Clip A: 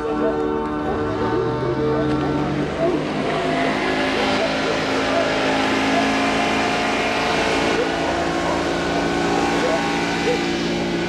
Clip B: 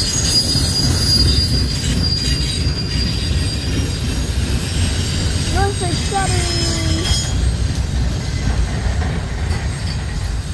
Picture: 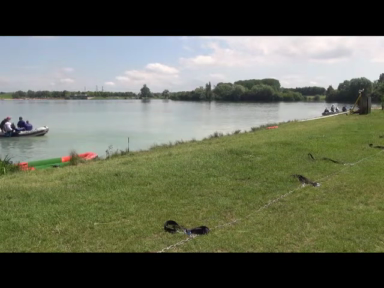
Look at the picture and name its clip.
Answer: A